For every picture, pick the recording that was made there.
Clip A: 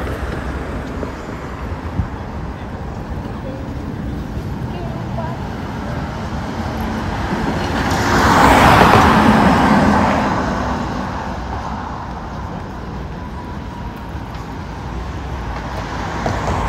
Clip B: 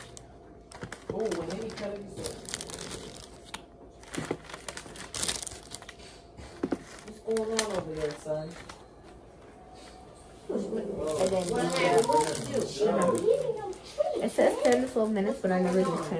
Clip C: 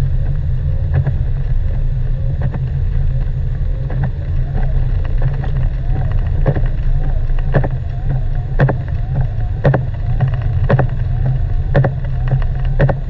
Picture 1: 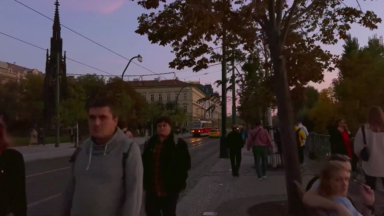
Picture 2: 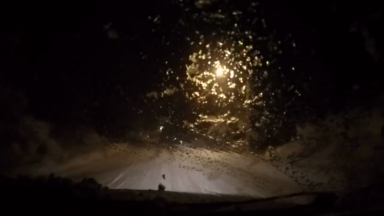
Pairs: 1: A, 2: C